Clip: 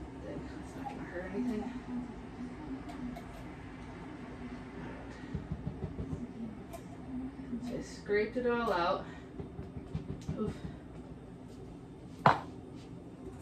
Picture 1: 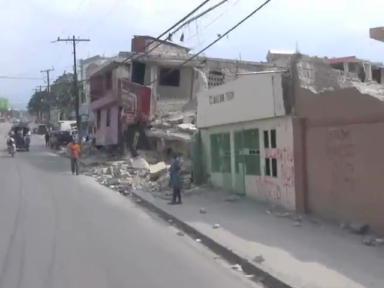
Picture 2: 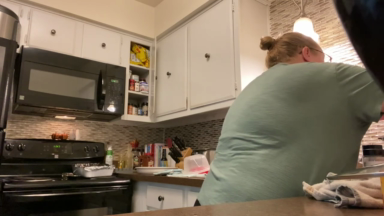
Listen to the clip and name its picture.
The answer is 2